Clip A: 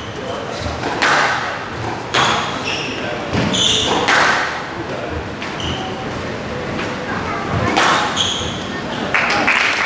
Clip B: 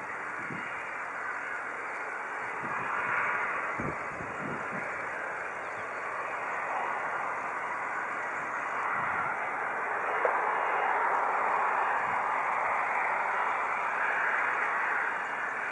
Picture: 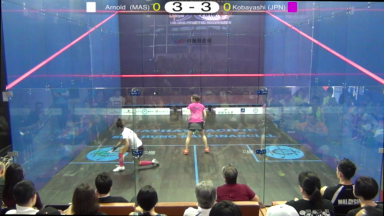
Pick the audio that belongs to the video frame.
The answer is A